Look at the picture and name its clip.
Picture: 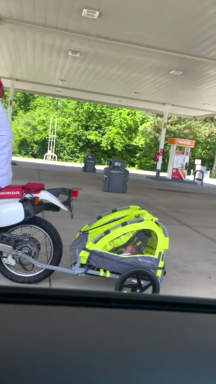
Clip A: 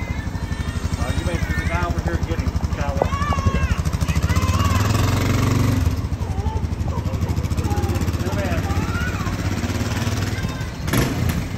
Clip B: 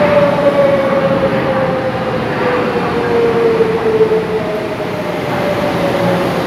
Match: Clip A